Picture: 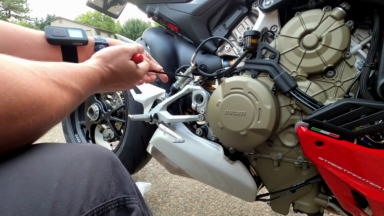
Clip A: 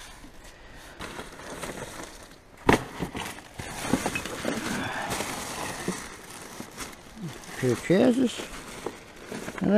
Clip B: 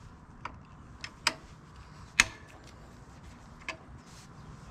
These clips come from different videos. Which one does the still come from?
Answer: B